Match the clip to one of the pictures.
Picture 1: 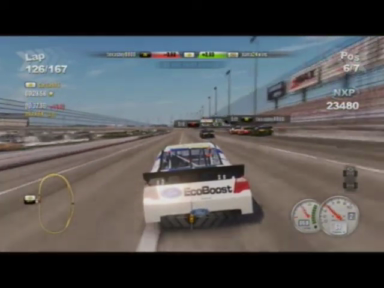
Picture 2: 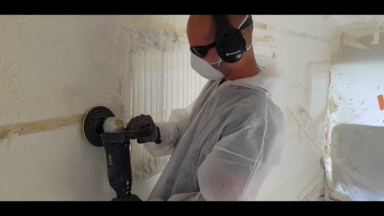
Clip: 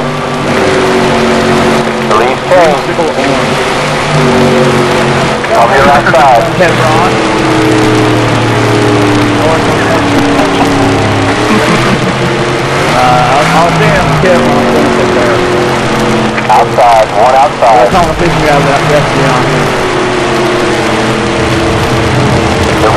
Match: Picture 1